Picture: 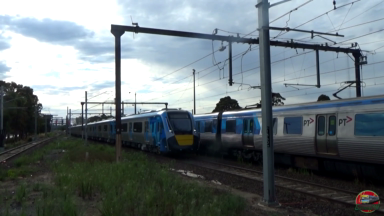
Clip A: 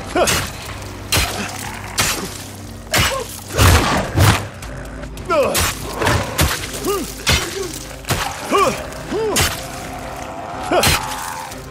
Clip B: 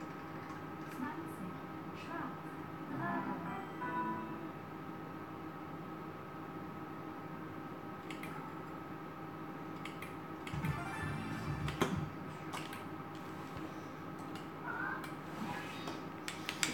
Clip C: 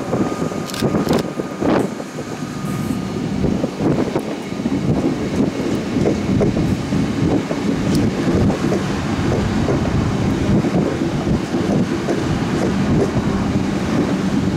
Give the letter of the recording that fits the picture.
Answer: C